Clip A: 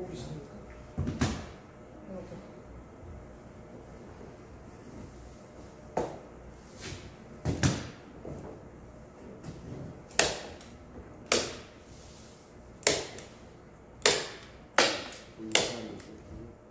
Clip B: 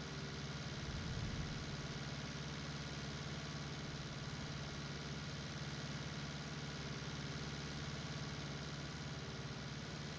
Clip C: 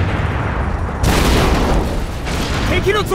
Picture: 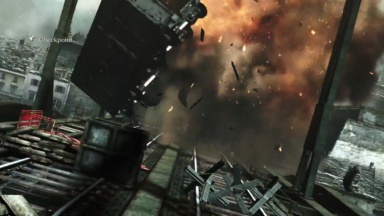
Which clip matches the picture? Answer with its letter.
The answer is C